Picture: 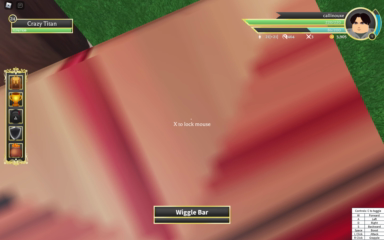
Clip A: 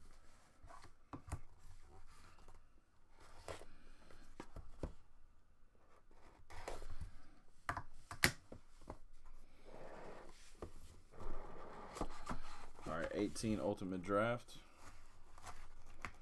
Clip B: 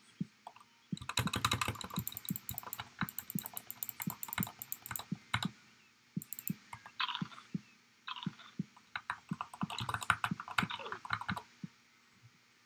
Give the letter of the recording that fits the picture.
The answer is B